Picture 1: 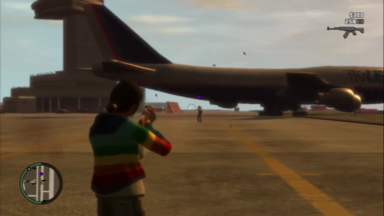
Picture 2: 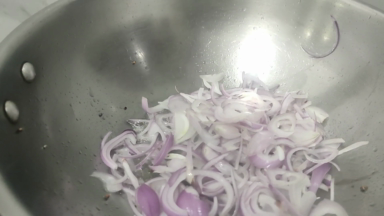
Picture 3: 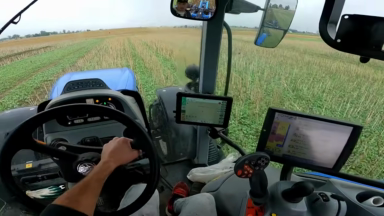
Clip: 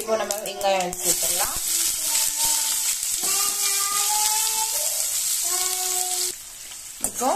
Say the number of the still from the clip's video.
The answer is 2